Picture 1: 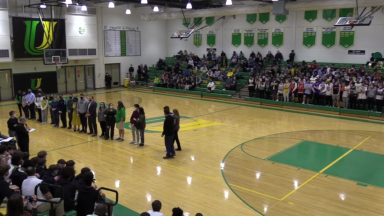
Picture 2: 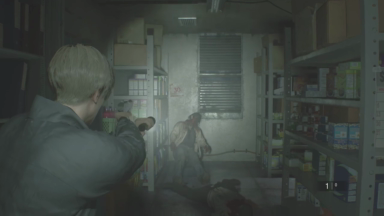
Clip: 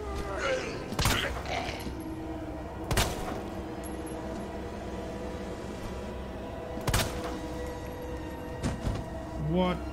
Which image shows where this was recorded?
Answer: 2